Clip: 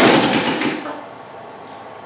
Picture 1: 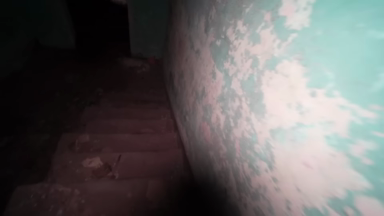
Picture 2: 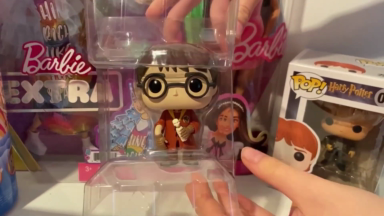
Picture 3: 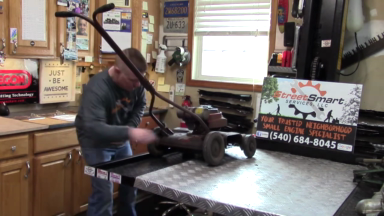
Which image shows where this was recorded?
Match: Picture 3